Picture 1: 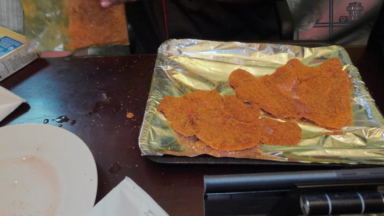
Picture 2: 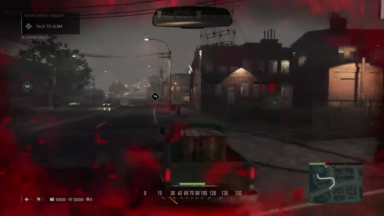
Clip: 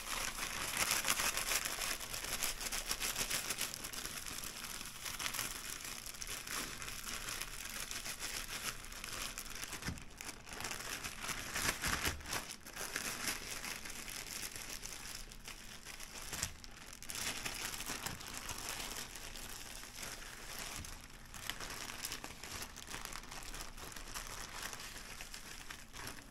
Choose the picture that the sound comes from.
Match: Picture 1